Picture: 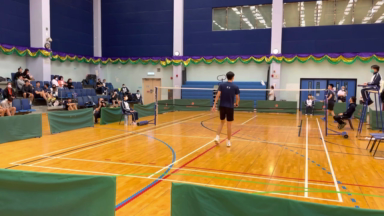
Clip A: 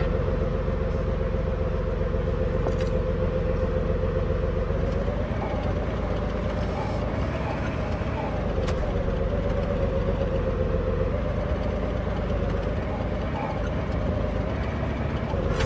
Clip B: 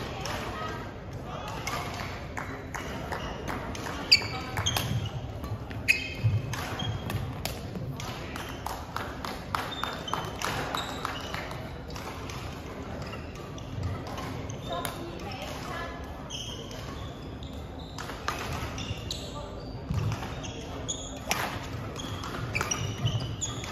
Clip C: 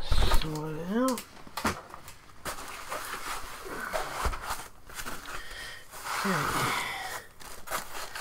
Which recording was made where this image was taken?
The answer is B